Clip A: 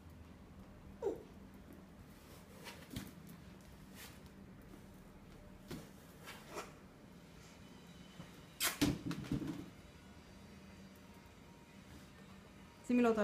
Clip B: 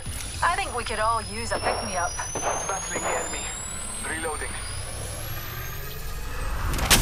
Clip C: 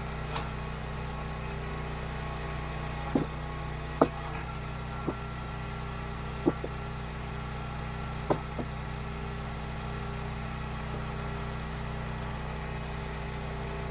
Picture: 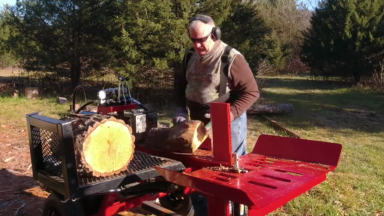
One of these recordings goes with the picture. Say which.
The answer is C